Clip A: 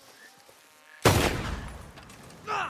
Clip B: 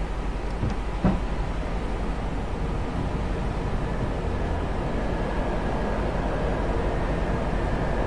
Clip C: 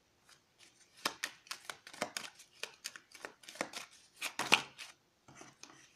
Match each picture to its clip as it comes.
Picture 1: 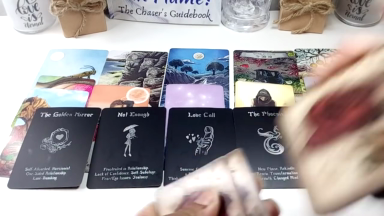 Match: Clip C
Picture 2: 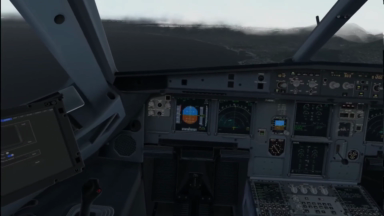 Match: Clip B